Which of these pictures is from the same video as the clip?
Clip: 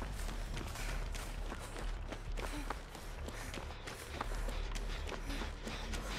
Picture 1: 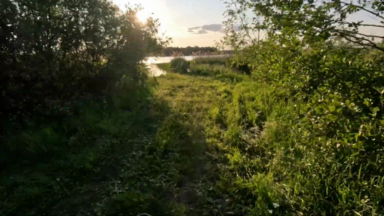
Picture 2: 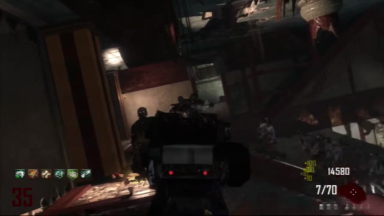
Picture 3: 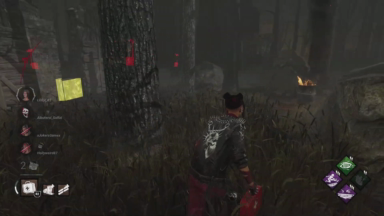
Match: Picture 3